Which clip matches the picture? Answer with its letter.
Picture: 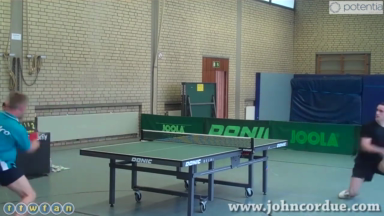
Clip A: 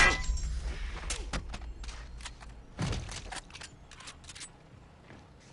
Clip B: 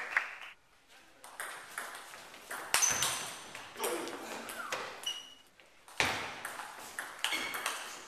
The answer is B